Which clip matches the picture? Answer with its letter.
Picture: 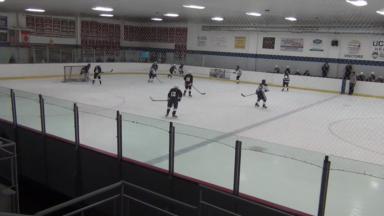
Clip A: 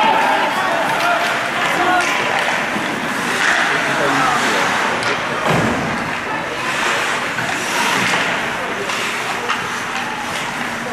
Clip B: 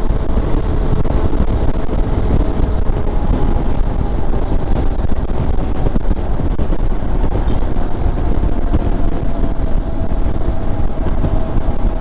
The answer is A